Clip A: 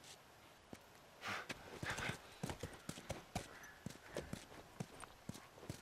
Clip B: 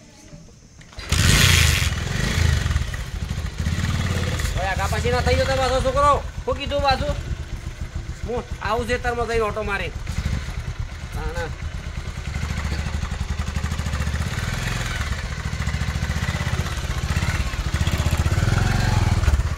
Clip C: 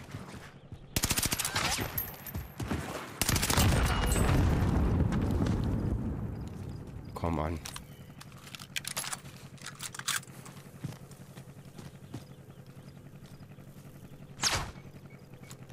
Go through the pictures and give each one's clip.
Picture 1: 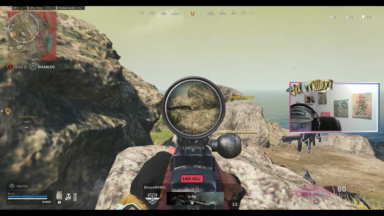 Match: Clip C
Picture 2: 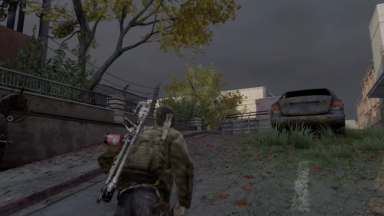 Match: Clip A